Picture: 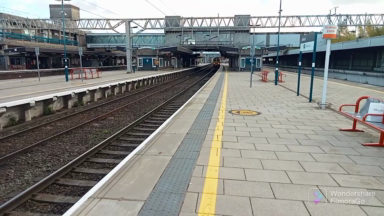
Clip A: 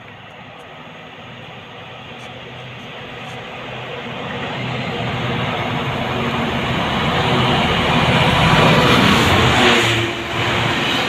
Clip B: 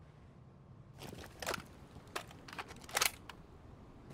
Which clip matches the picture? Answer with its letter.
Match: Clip A